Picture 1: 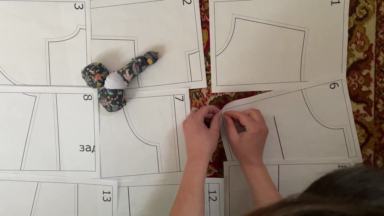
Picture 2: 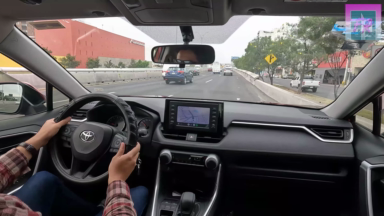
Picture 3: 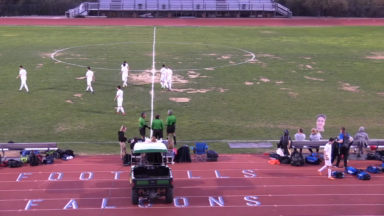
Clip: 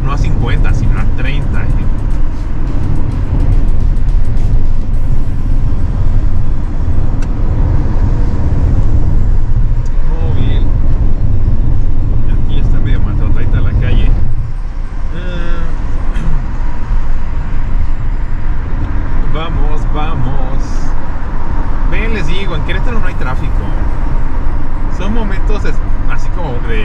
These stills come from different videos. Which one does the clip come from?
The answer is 2